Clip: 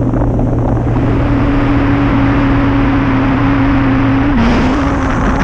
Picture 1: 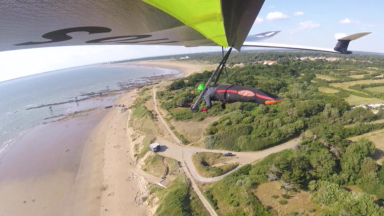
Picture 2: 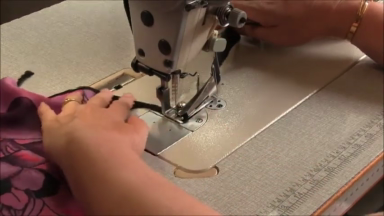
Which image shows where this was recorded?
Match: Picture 1